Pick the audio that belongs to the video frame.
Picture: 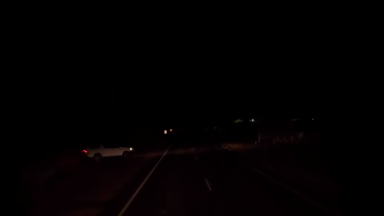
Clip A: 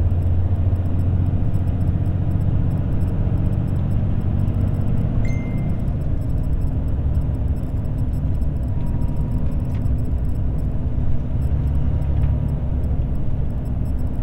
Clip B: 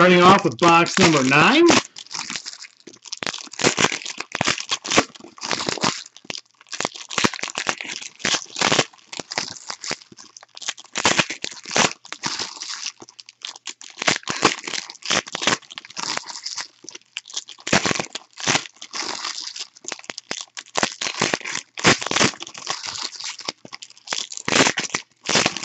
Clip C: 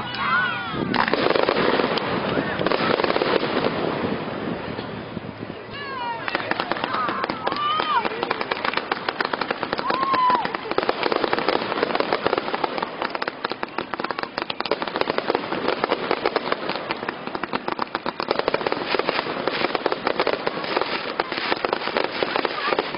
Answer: A